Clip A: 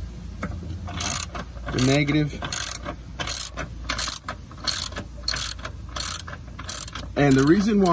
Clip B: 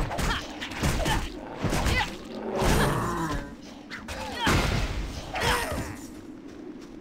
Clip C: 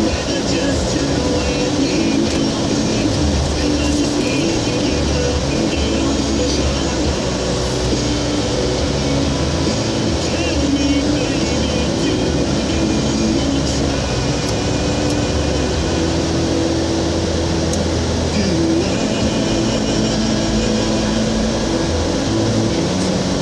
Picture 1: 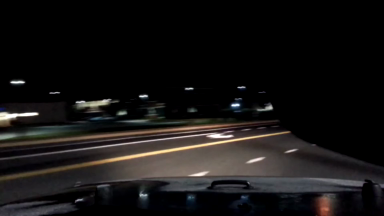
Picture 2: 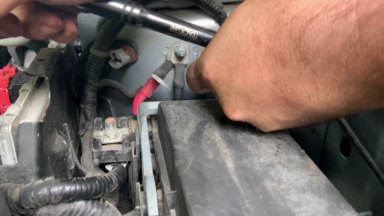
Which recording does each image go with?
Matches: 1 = C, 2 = A